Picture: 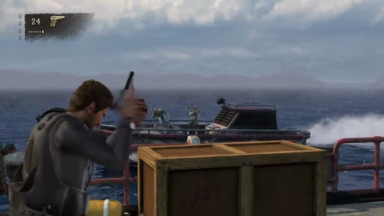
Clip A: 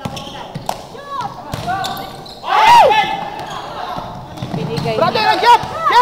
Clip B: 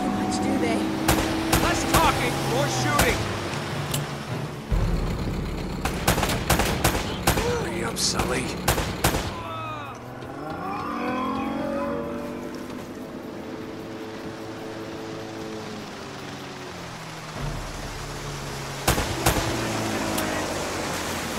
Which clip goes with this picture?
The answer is B